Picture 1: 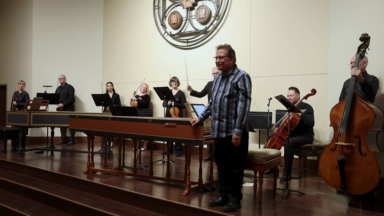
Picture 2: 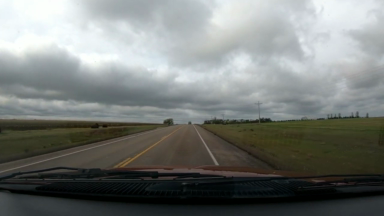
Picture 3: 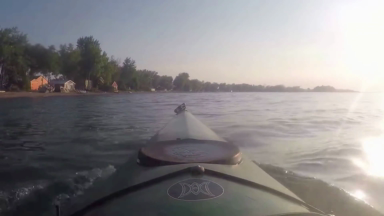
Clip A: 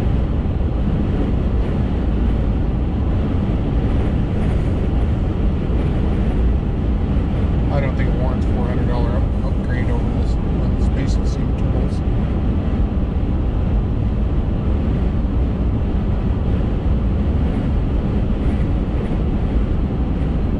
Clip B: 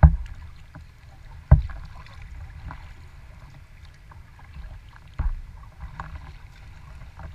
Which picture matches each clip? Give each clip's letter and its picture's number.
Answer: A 2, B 3